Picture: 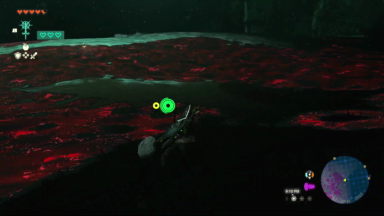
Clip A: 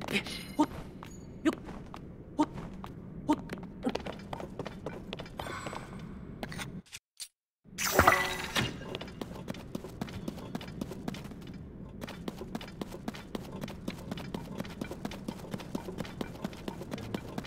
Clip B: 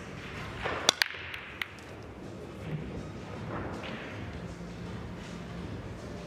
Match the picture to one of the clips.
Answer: A